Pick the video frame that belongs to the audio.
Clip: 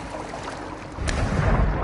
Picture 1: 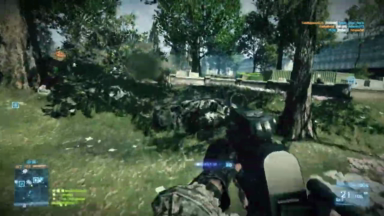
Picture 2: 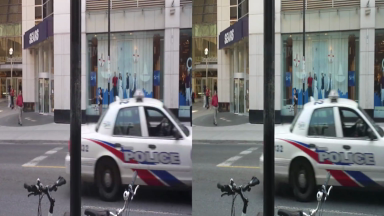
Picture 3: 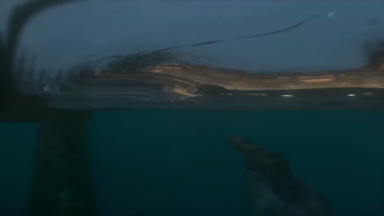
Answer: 3